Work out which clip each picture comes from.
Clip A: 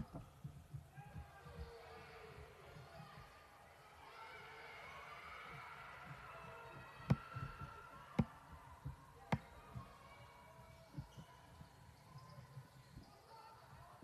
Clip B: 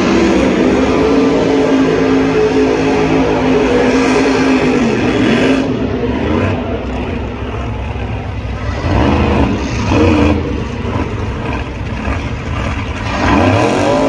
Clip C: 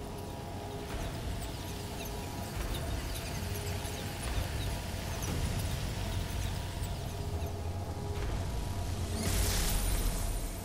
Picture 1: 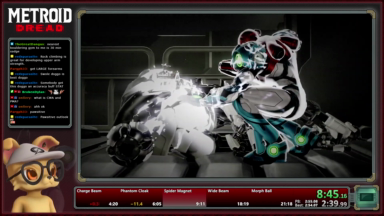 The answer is C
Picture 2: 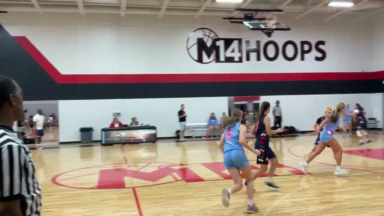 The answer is A